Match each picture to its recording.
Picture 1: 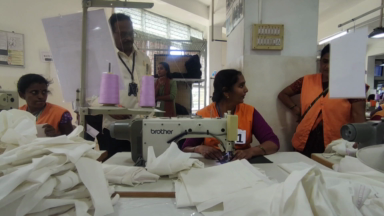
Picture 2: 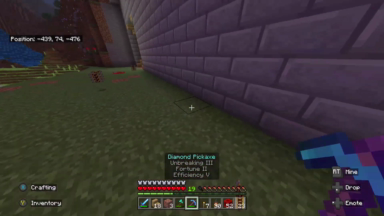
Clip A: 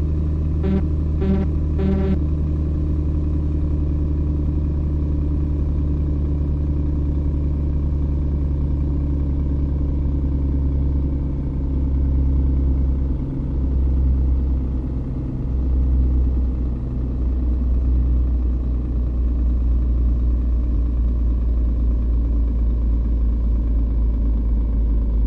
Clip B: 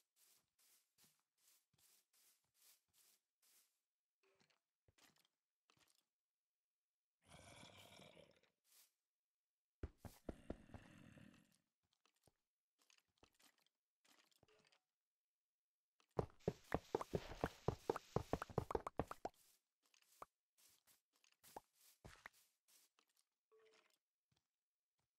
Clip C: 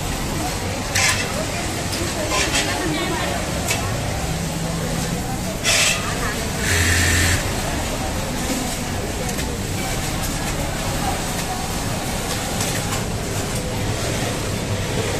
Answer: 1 C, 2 B